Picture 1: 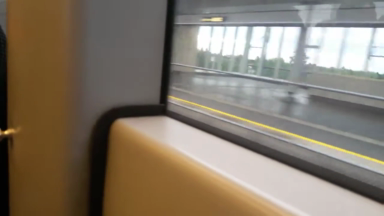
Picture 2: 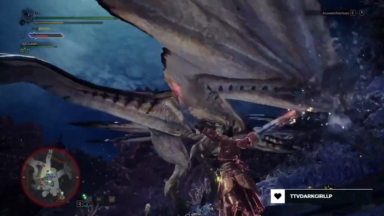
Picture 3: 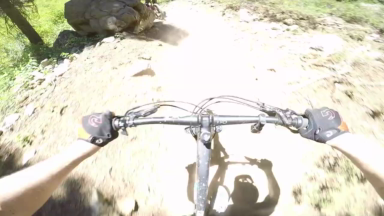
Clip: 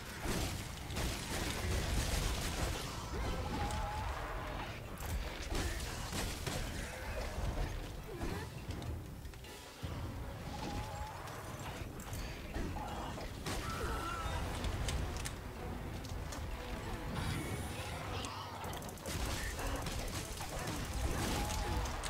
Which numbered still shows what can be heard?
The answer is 2